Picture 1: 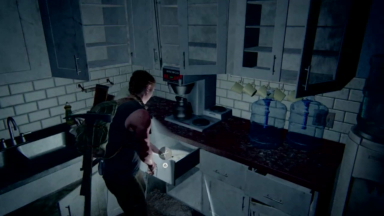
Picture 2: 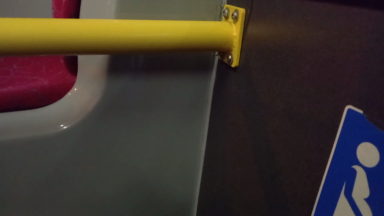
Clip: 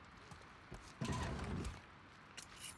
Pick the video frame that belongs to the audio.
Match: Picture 1